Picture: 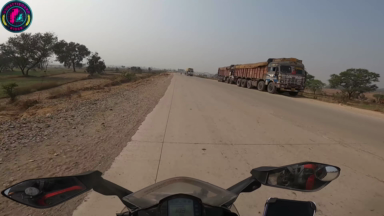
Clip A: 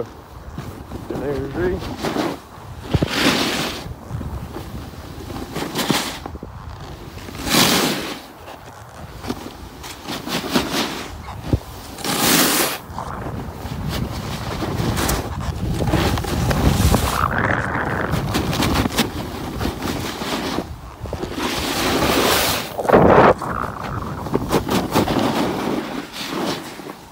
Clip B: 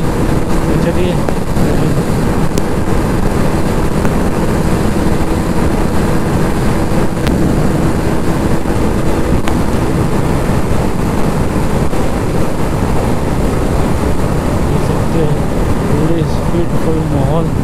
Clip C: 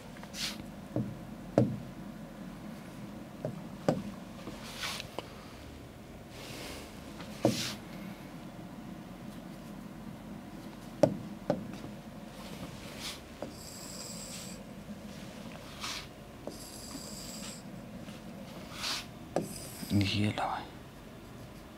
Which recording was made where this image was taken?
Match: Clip B